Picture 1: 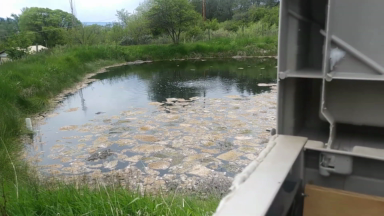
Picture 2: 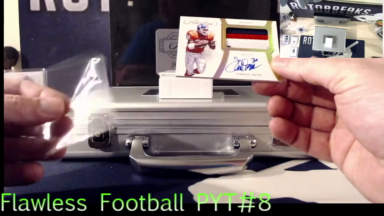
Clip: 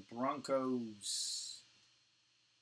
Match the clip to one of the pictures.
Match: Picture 2